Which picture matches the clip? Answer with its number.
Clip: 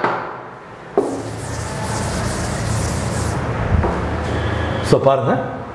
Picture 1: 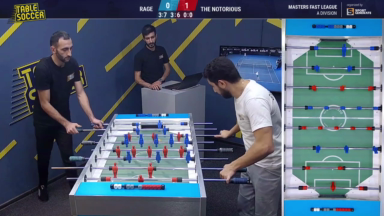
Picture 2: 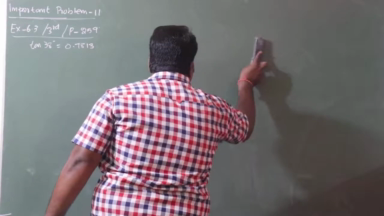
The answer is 2